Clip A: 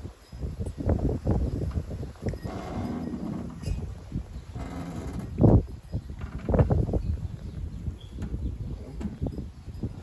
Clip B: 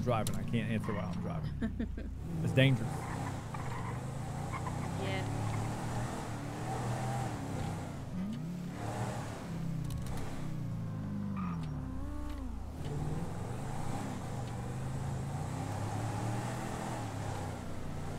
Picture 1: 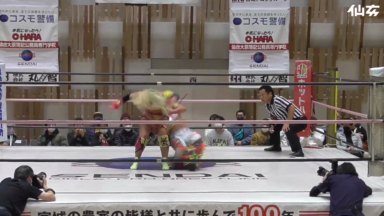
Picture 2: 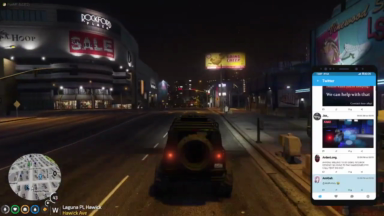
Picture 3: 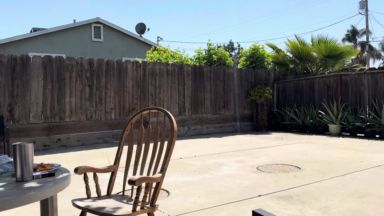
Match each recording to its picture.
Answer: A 3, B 2